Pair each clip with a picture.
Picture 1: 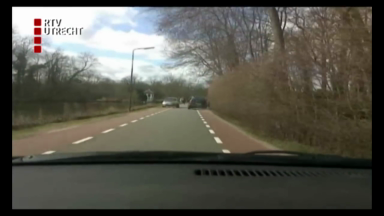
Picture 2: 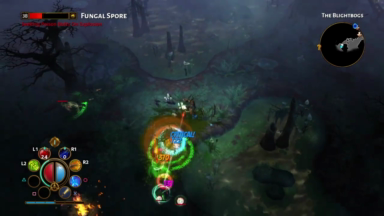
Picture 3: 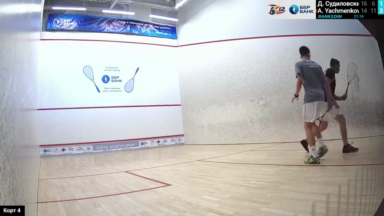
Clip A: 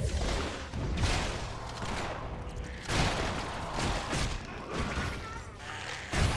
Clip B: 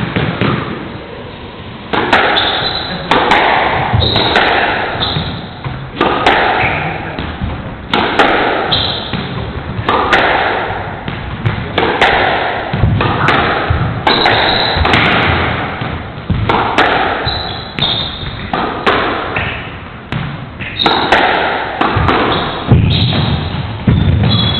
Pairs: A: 2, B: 3